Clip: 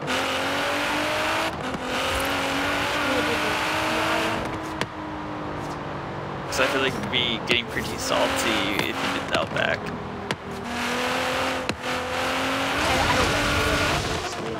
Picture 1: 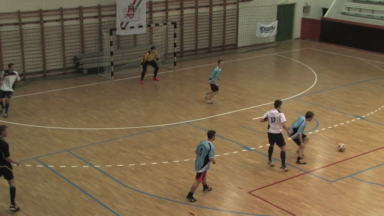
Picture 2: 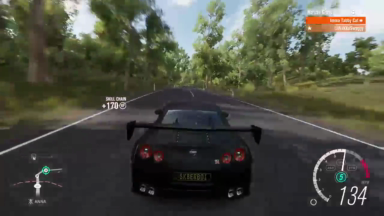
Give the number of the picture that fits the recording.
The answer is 2